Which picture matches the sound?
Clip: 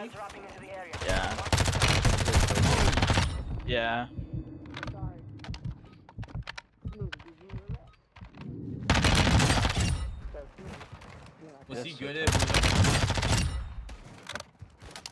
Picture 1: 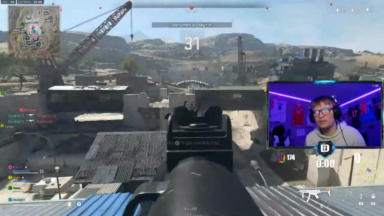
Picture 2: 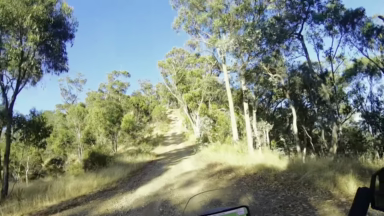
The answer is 1